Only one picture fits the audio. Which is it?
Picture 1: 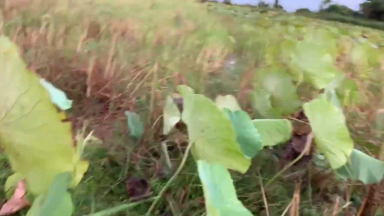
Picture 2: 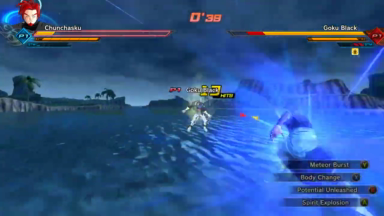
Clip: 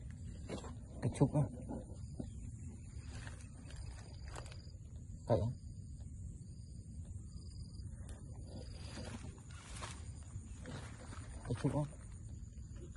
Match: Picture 1